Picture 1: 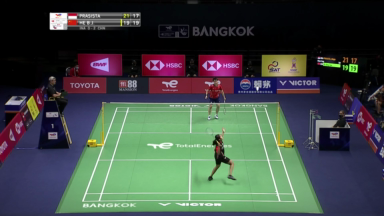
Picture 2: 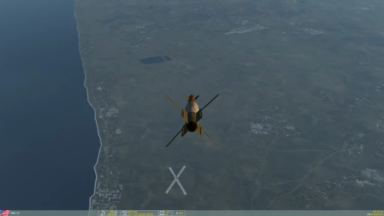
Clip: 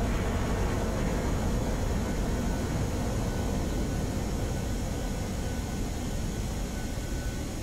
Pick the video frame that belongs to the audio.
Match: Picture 2